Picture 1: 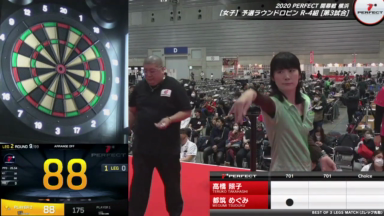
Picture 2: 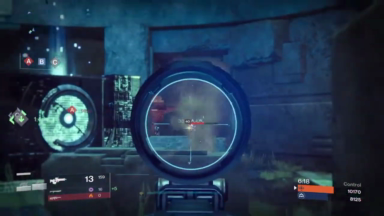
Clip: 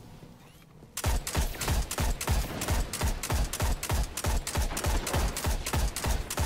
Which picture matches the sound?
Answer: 2